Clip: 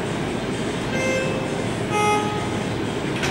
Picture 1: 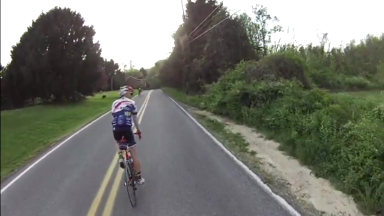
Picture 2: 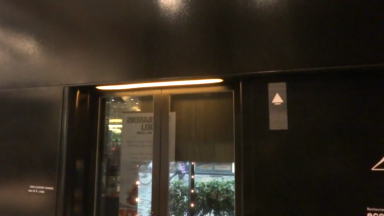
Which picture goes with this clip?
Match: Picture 2